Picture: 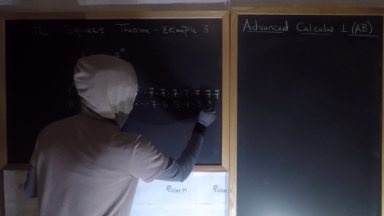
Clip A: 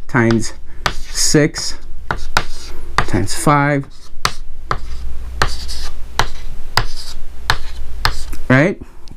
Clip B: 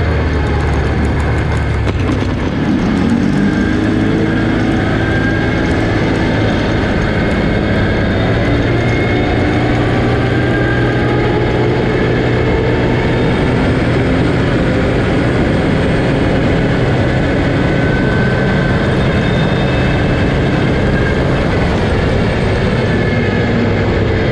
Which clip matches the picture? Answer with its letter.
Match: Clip A